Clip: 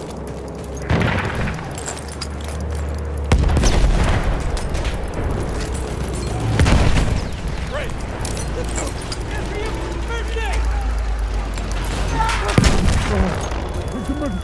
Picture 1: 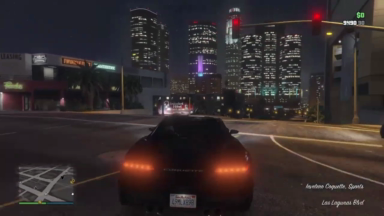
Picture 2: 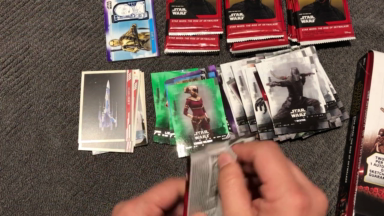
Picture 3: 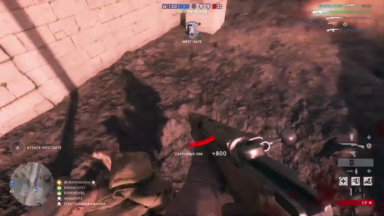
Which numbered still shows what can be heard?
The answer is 3